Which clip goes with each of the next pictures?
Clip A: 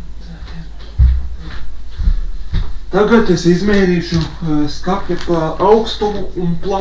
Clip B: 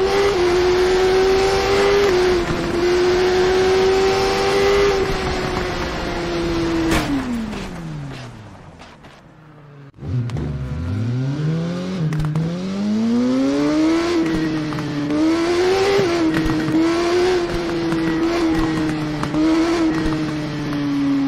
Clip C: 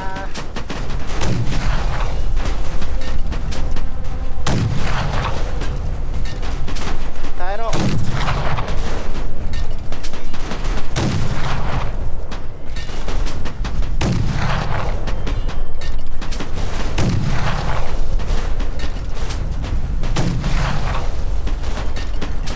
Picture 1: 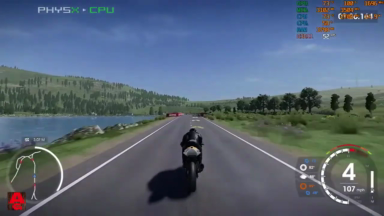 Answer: B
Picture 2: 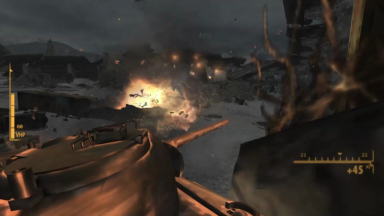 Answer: C